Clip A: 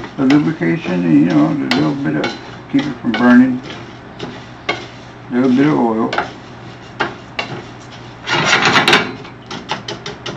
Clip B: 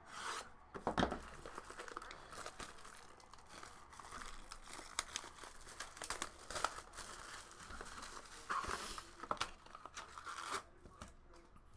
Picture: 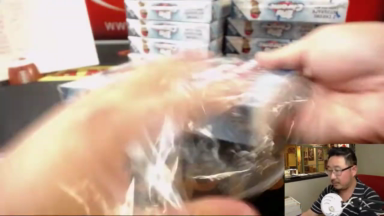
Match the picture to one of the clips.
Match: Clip B